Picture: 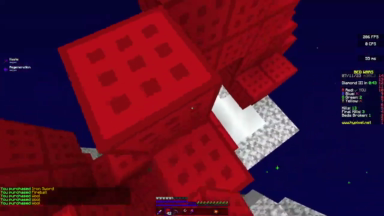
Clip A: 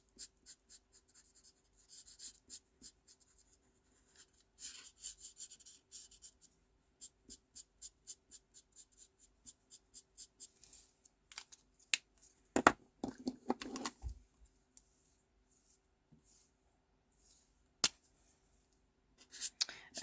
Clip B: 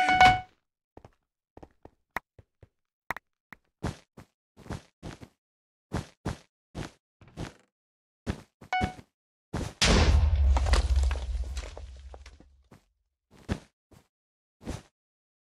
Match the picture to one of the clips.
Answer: B